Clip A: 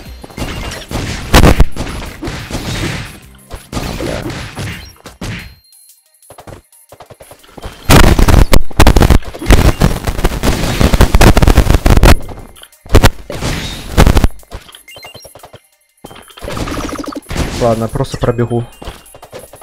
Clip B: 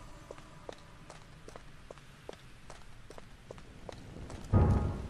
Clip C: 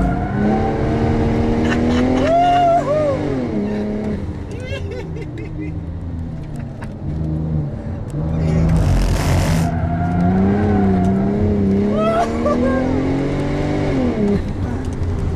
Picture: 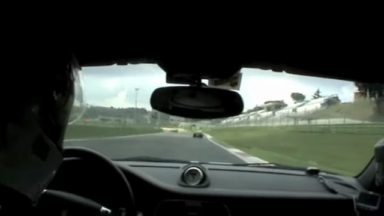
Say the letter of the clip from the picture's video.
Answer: C